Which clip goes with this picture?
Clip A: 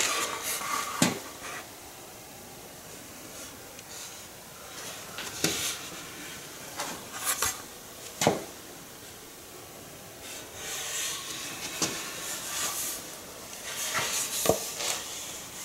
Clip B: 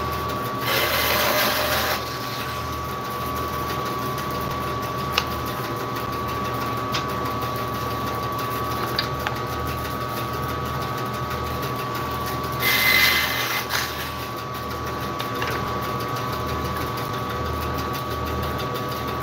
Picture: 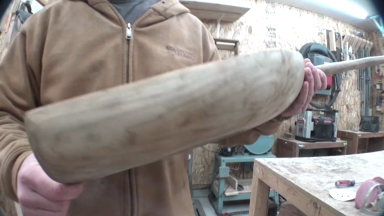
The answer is A